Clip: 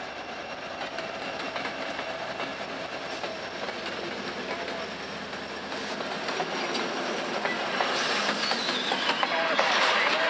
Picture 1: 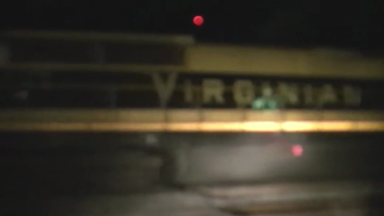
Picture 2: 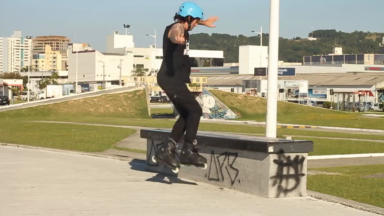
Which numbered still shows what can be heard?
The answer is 1